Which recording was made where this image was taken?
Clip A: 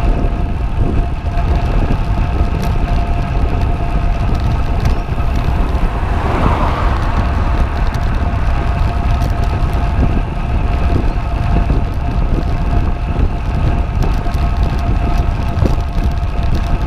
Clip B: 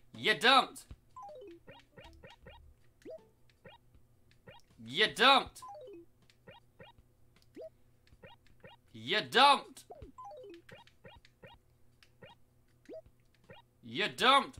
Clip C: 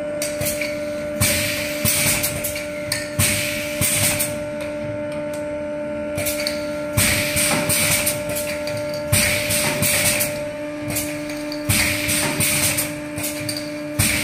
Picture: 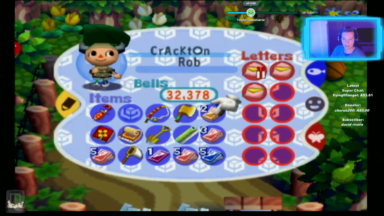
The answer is B